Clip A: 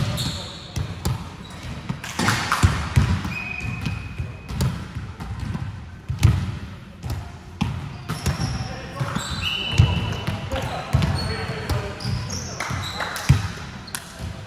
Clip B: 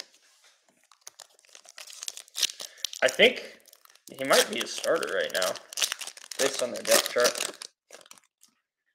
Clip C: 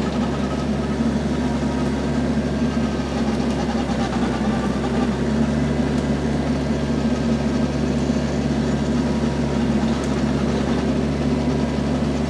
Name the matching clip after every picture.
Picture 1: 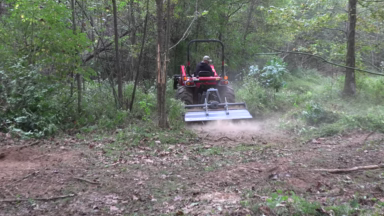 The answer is C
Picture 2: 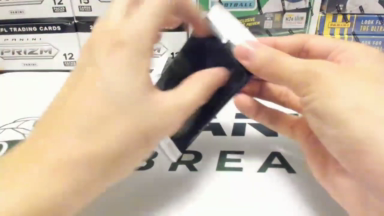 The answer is B